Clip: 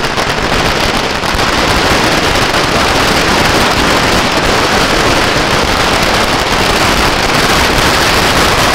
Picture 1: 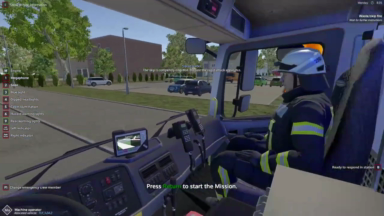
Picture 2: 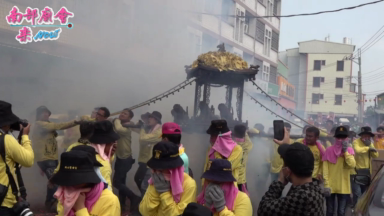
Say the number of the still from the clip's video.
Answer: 2